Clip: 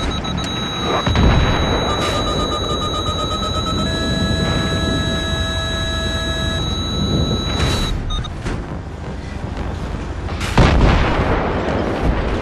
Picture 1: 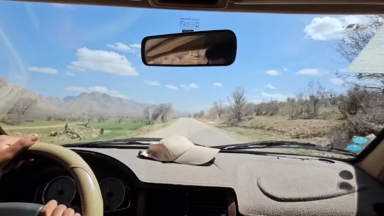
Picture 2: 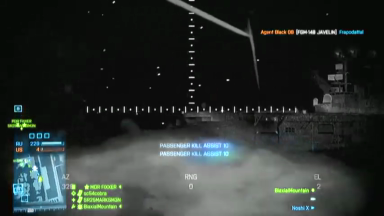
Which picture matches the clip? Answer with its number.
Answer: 2